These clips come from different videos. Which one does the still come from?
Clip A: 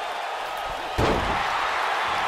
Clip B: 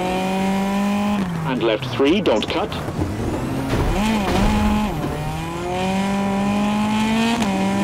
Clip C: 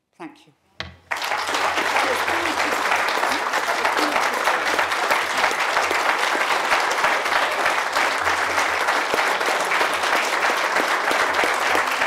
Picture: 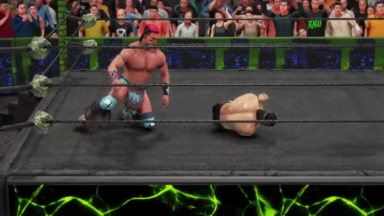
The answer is A